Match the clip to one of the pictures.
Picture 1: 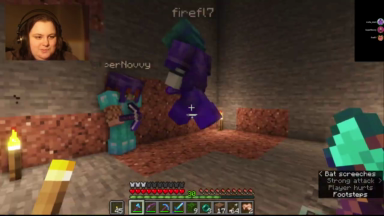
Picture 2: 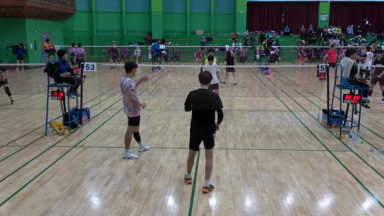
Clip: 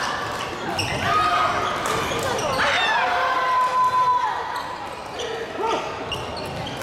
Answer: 2